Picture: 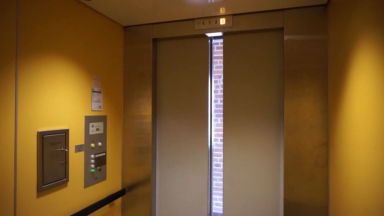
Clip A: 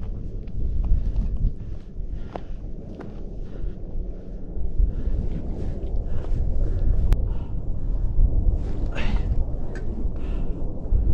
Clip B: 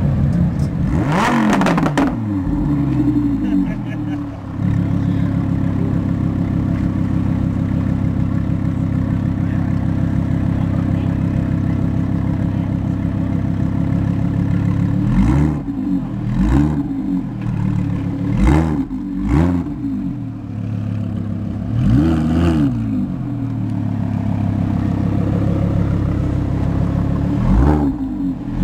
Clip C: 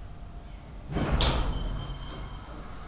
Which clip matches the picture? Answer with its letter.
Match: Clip C